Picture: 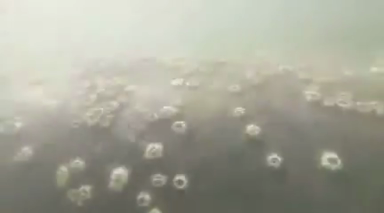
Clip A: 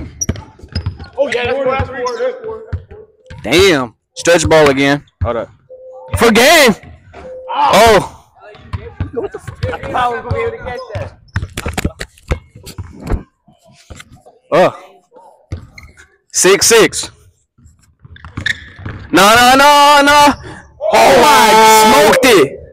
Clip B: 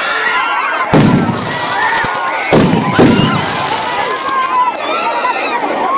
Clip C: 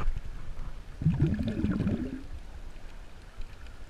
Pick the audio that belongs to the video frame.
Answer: C